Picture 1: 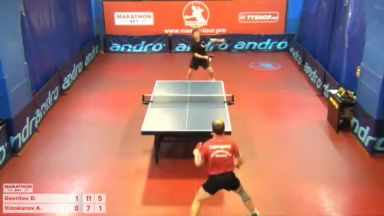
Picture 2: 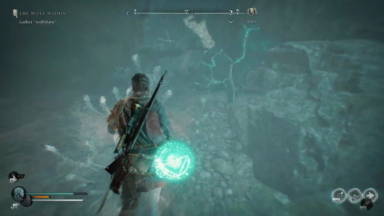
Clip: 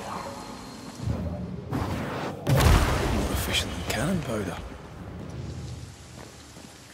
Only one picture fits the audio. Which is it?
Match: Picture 2